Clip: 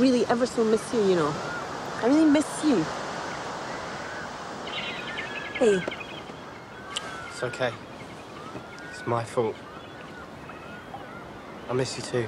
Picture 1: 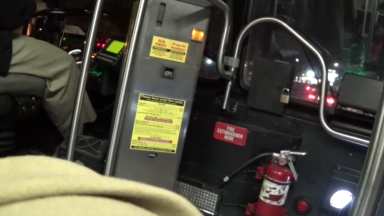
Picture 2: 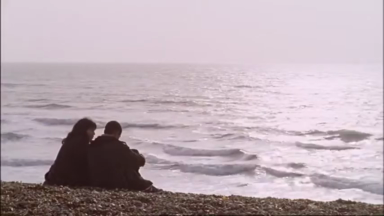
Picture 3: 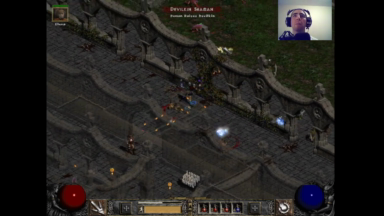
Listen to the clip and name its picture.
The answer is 2